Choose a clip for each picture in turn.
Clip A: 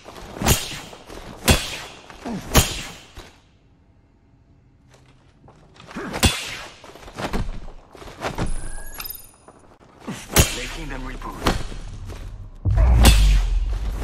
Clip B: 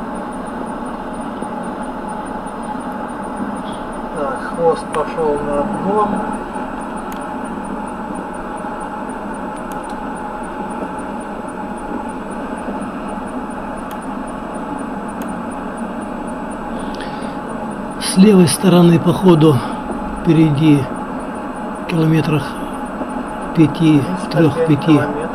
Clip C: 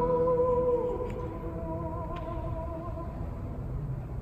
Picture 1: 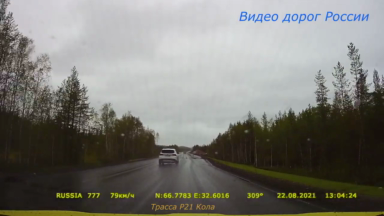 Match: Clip B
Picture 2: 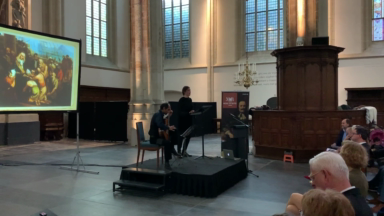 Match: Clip C